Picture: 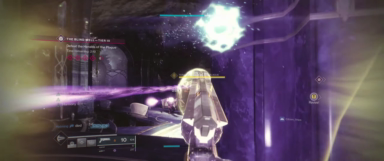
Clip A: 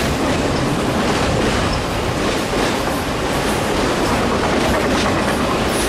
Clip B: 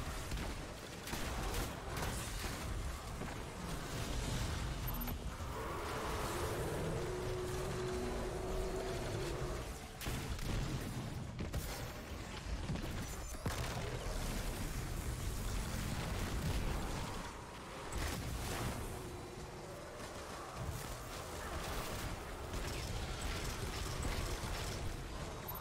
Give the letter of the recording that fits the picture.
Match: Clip B